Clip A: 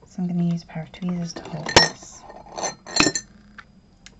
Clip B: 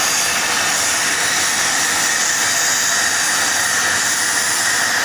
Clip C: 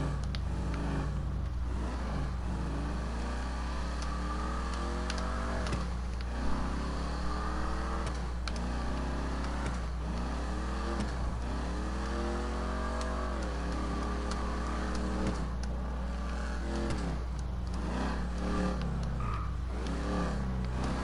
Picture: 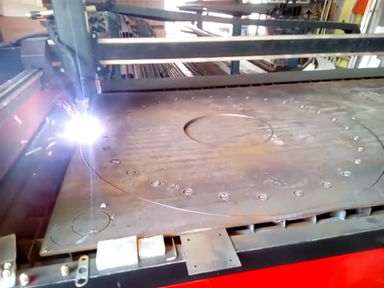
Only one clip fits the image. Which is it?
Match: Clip B